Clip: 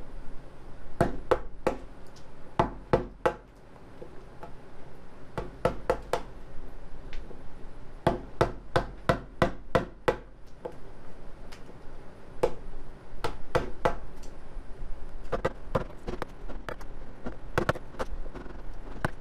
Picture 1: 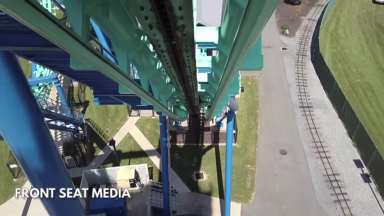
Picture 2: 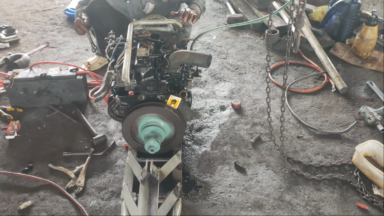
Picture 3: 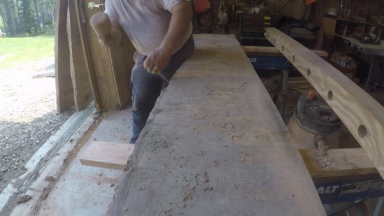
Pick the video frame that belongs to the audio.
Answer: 3